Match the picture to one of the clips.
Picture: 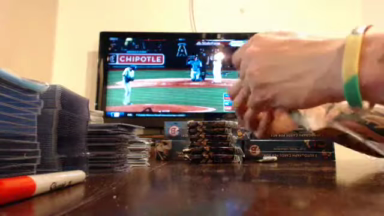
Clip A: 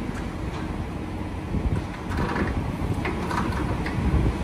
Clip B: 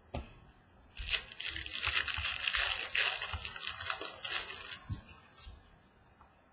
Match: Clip B